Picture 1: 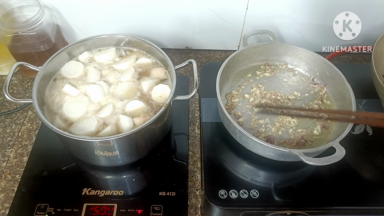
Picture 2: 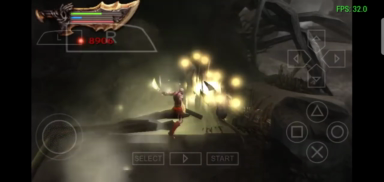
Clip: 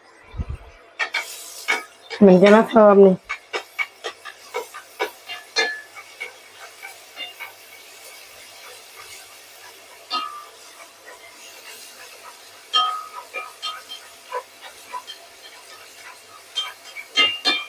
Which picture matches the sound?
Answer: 1